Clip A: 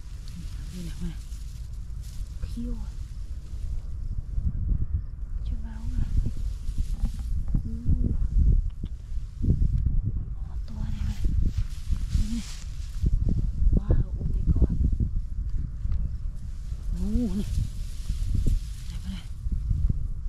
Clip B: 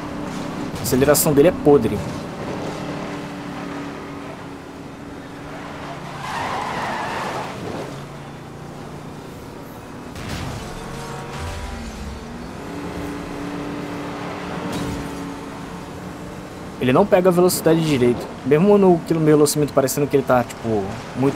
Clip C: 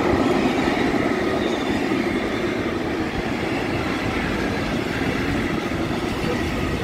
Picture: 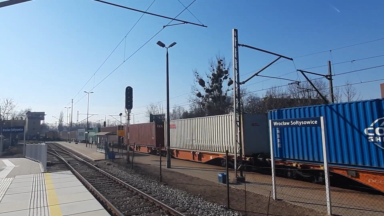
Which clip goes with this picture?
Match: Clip C